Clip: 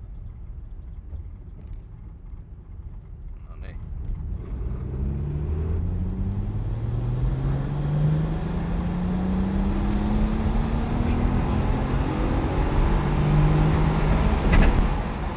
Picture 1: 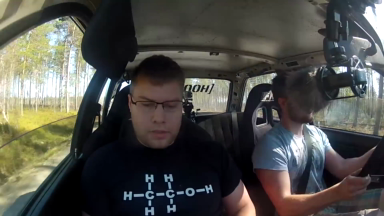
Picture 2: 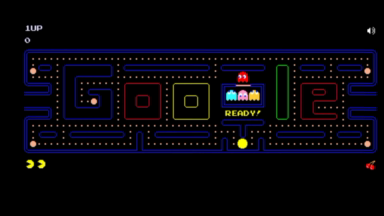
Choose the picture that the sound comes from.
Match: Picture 1